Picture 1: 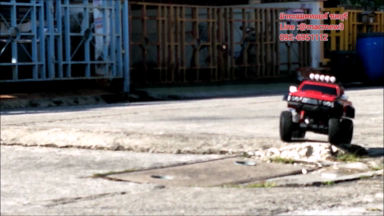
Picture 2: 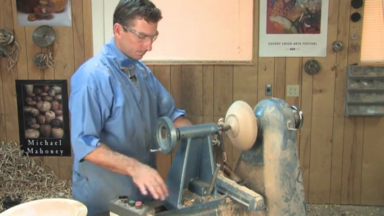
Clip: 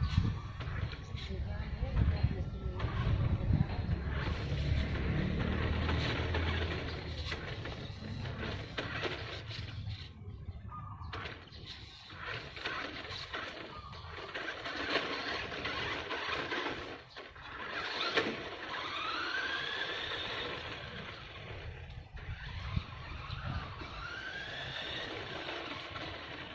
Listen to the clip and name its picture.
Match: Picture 1